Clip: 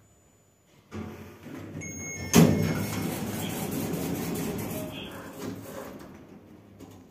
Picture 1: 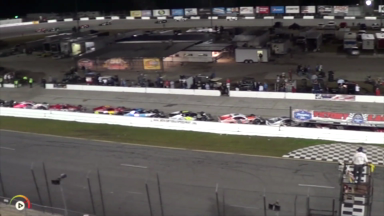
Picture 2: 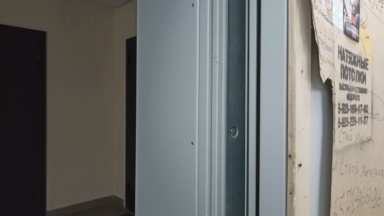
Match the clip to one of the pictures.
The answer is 2